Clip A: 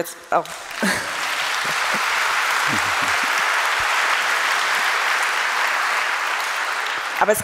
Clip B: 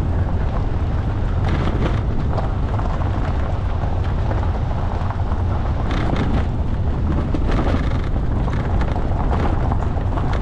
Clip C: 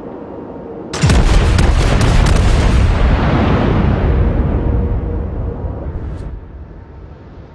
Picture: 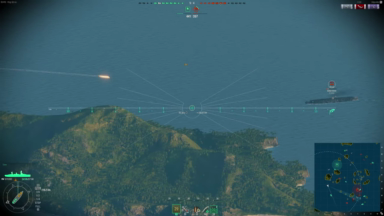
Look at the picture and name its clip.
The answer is C